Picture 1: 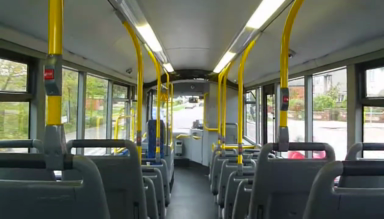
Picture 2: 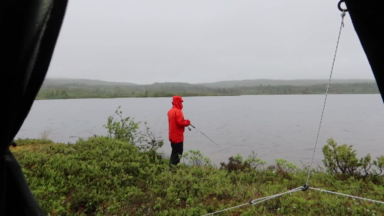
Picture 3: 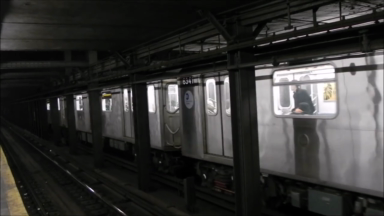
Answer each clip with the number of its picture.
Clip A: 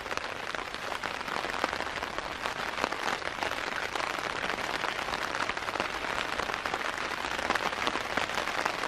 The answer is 2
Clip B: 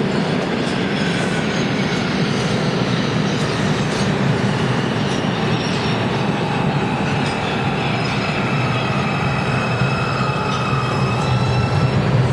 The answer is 3